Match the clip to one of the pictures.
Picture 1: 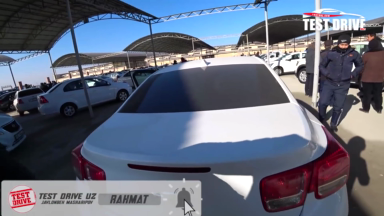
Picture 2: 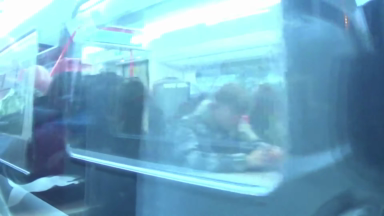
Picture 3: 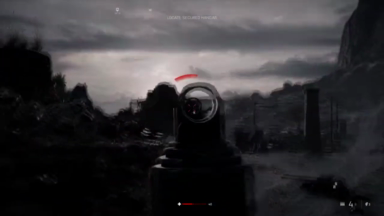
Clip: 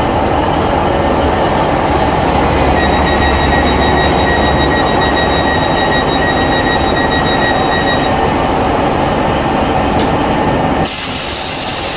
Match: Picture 2